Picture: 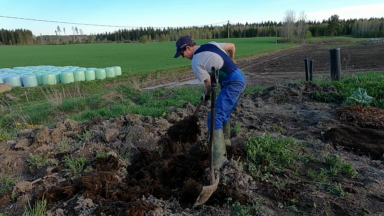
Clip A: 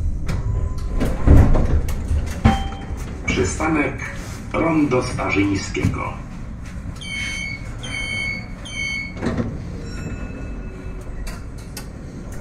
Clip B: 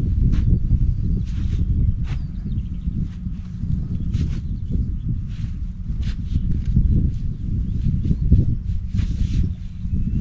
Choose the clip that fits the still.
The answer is B